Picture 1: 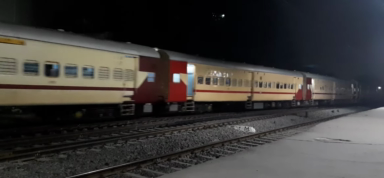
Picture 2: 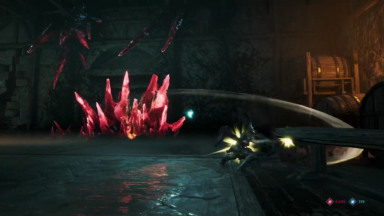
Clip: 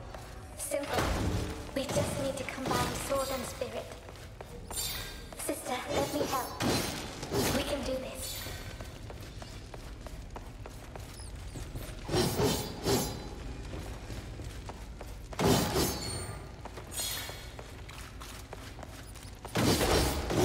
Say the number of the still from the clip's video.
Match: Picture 2